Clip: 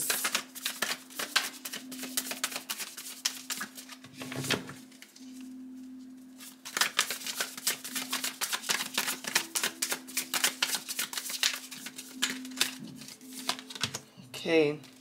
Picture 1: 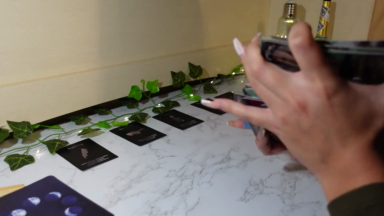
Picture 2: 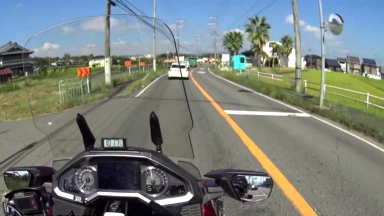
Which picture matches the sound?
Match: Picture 1